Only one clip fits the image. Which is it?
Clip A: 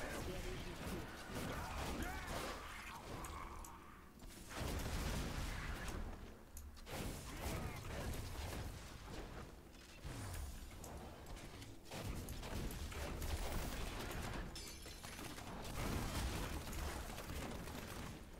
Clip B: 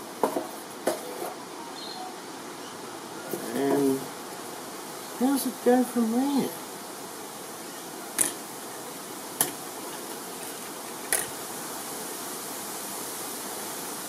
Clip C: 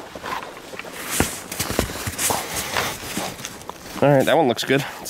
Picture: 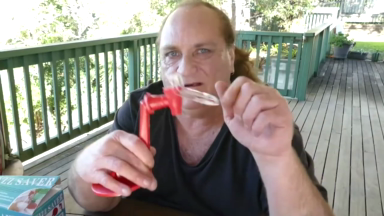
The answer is B